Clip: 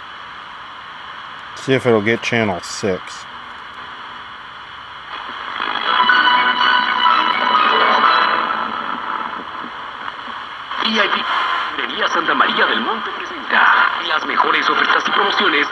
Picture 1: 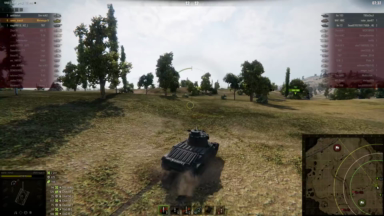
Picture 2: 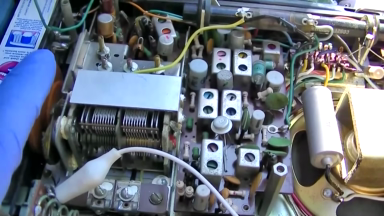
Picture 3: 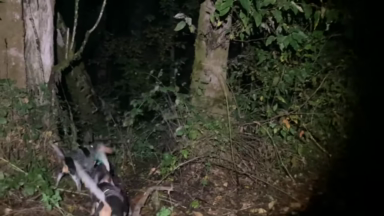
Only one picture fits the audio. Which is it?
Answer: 2